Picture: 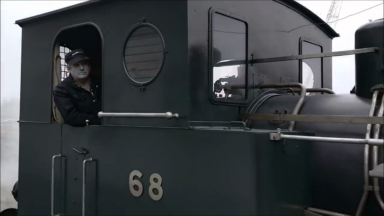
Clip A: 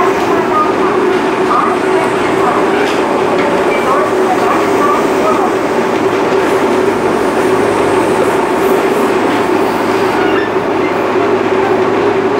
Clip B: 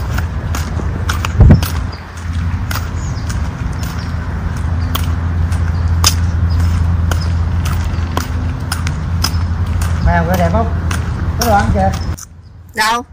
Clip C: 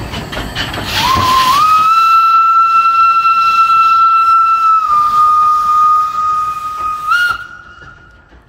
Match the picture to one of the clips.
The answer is C